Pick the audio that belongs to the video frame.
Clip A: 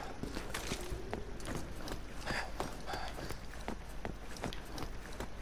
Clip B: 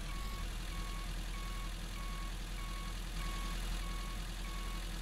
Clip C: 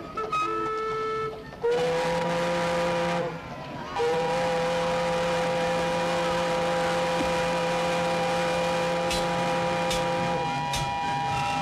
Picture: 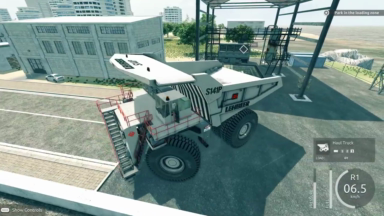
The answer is B